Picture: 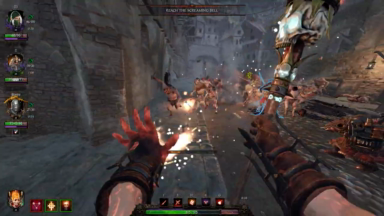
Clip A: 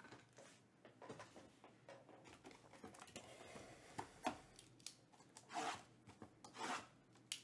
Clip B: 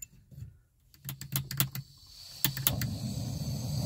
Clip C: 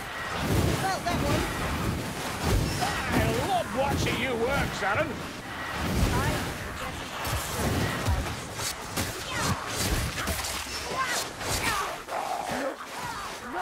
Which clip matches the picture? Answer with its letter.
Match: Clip C